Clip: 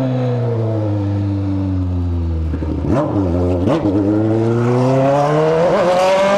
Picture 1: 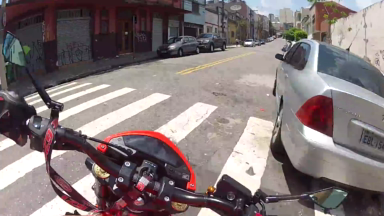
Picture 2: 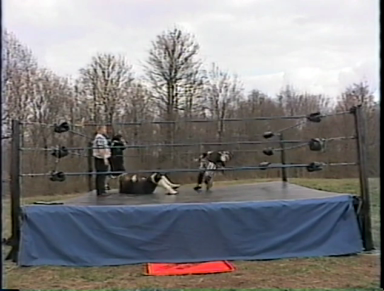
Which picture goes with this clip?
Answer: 1